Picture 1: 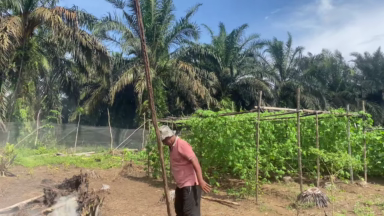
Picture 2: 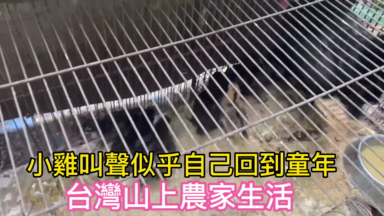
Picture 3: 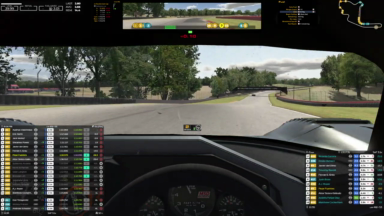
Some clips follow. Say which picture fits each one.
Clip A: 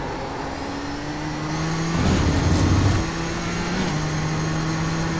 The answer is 3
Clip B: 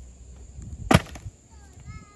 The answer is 1